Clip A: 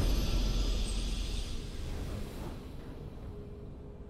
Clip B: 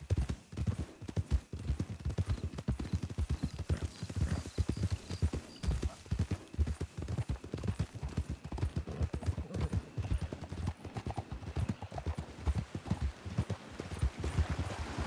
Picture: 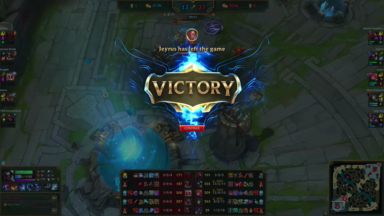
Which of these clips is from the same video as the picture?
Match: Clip A